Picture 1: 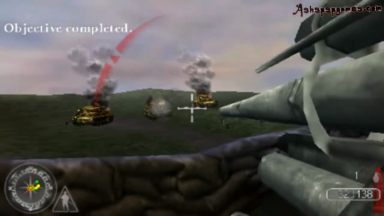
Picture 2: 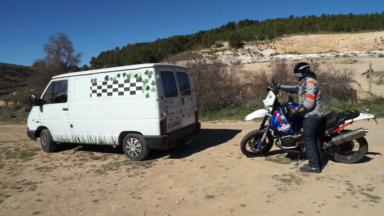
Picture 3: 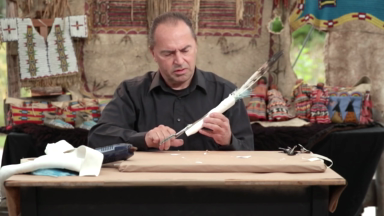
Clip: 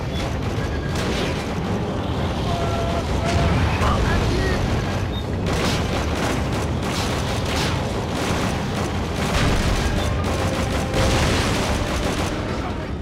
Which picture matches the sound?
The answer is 1